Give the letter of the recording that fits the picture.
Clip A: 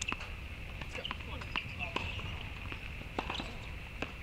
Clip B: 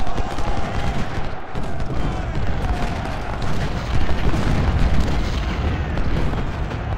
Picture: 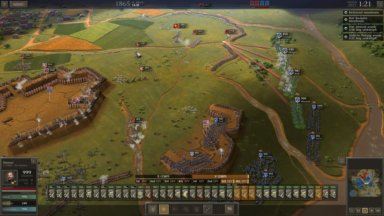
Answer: B